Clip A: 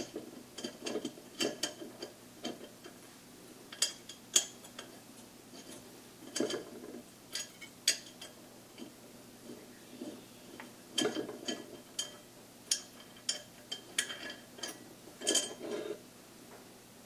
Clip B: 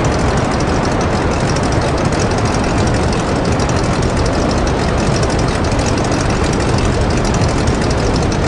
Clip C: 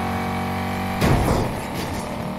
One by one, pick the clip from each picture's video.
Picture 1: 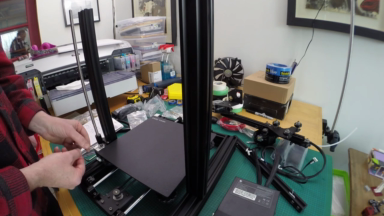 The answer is A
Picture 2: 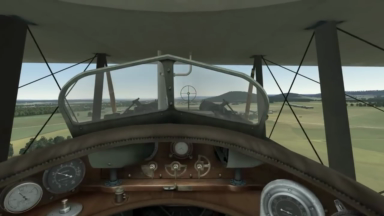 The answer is B